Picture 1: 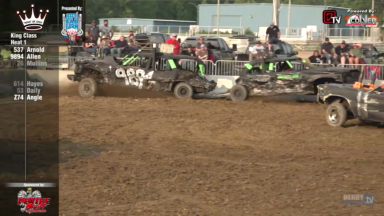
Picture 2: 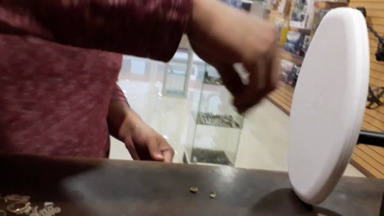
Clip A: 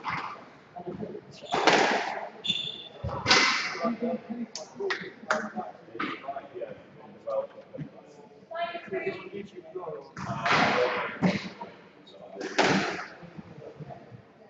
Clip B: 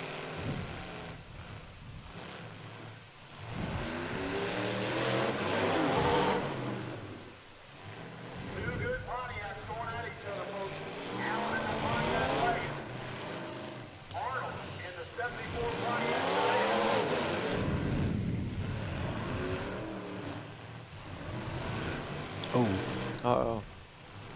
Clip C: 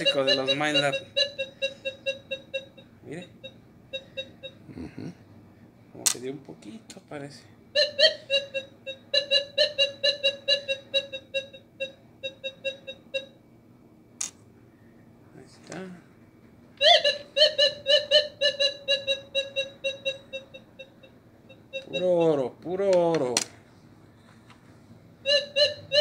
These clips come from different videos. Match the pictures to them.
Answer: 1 B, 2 C